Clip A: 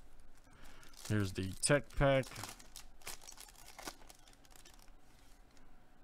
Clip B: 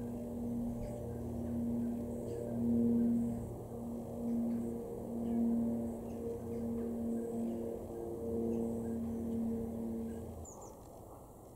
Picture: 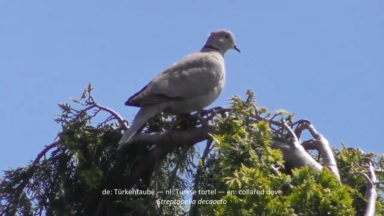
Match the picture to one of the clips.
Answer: B